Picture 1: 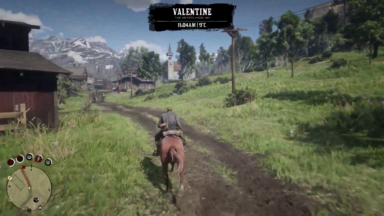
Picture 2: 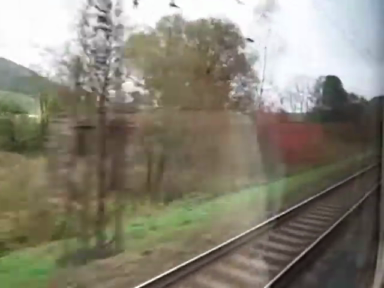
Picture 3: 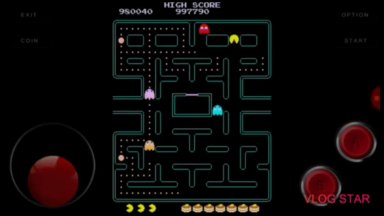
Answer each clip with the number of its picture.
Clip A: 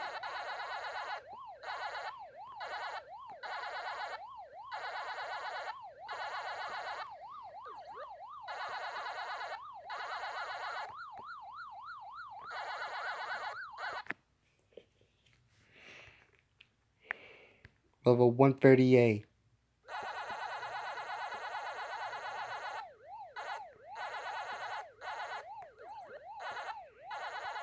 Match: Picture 3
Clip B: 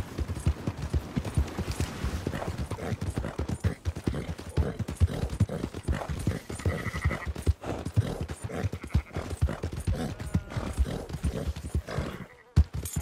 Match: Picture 1